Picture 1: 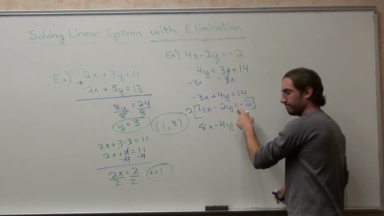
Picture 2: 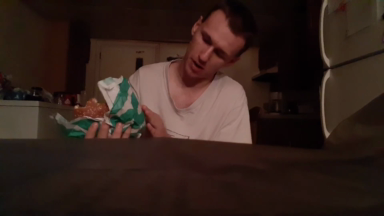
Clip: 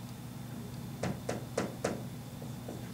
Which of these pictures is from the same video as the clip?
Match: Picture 1